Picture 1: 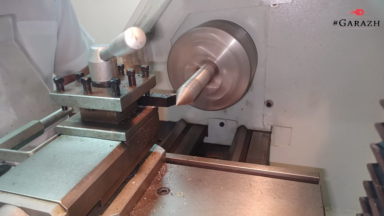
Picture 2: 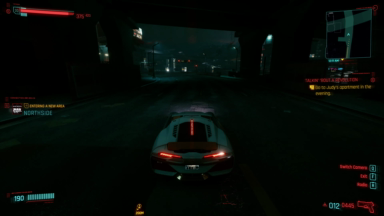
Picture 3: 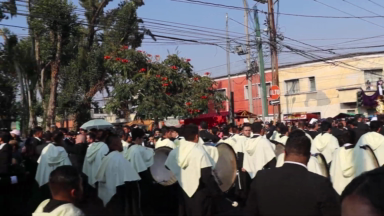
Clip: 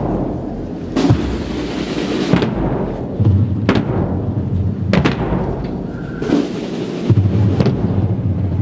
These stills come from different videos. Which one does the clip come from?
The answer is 3